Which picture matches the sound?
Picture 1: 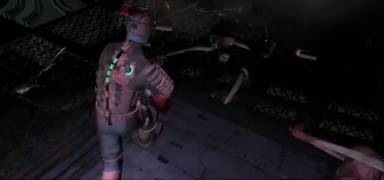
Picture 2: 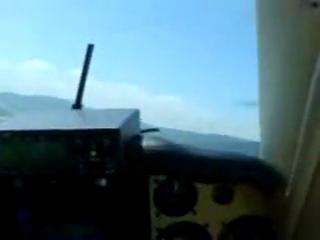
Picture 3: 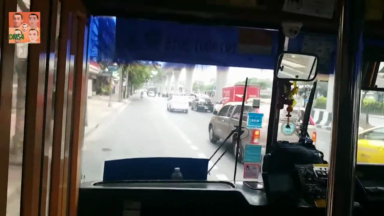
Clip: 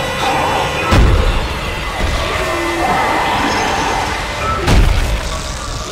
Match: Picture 1